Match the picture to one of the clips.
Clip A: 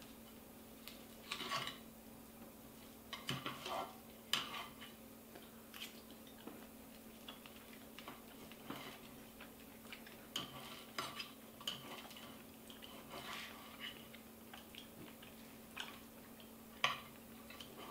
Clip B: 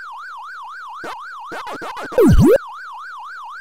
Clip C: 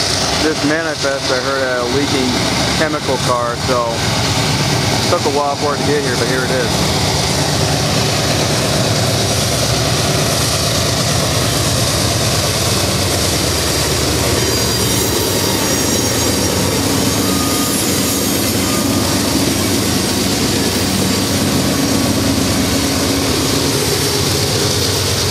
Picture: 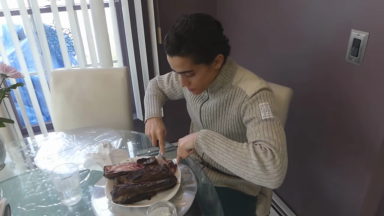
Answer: A